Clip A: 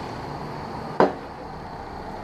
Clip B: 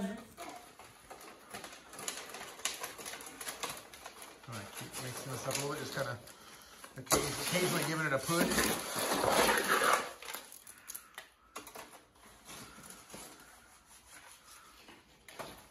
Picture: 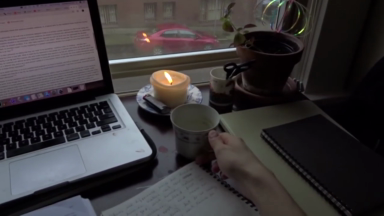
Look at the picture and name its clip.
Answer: A